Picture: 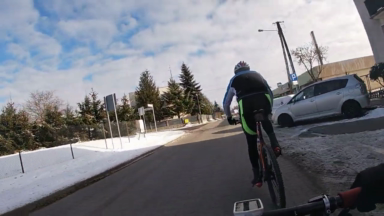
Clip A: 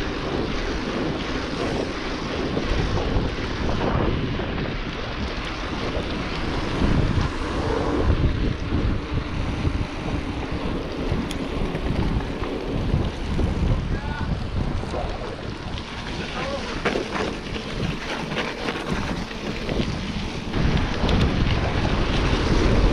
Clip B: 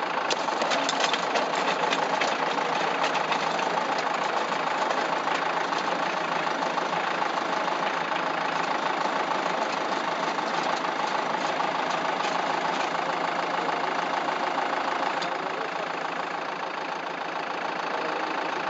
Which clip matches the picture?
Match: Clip A